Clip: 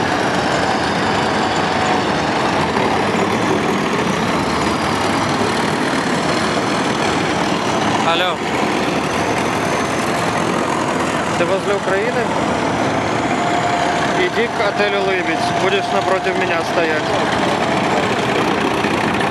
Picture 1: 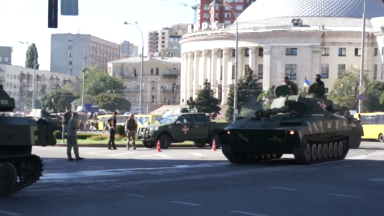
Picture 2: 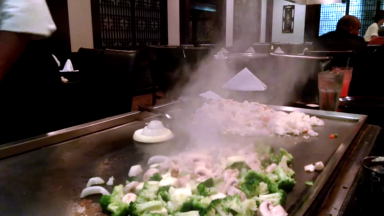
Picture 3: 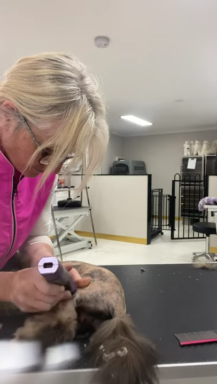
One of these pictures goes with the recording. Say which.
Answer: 1